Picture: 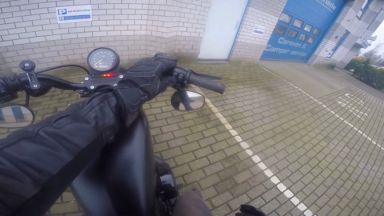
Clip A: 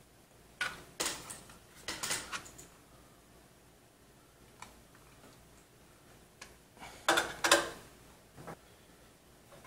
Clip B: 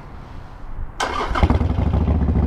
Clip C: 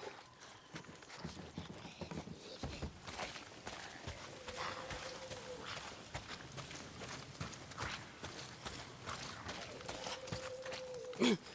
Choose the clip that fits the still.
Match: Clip B